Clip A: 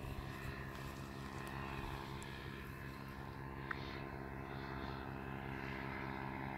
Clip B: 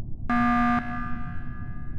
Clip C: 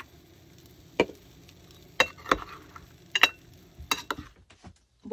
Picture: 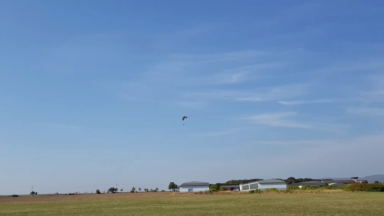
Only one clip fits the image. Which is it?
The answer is A